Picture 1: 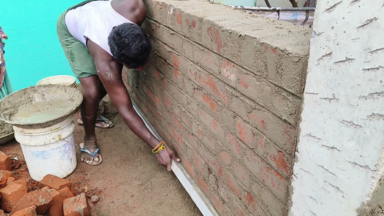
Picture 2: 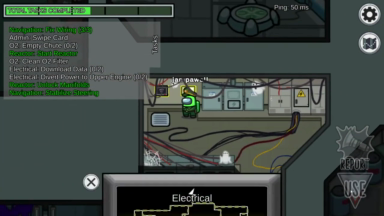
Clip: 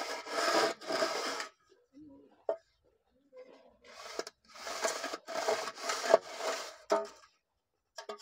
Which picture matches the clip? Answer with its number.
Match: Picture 1